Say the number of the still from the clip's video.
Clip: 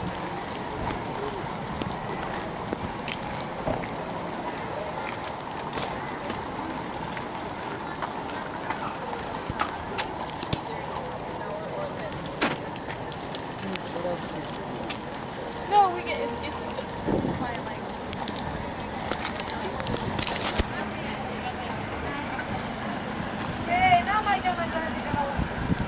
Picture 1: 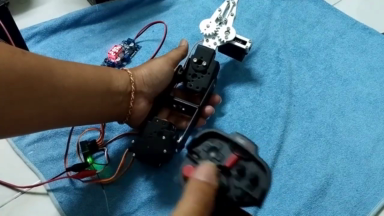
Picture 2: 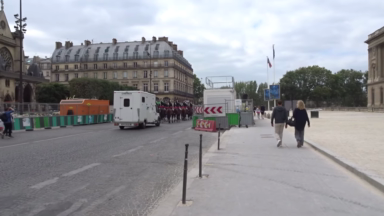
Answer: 2